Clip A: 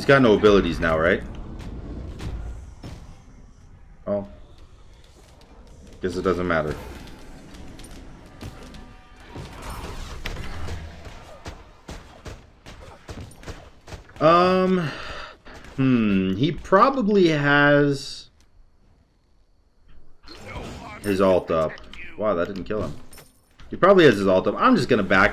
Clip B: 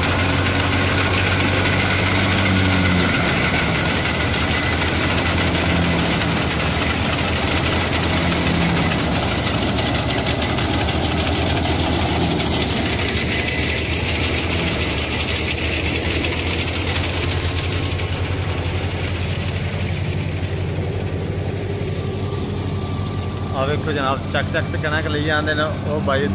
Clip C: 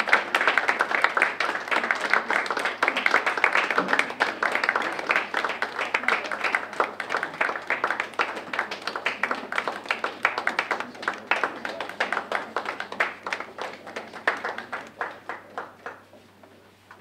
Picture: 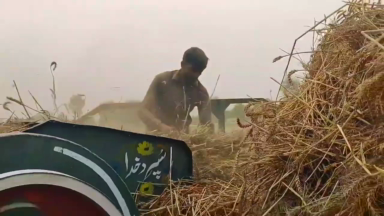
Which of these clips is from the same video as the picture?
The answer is B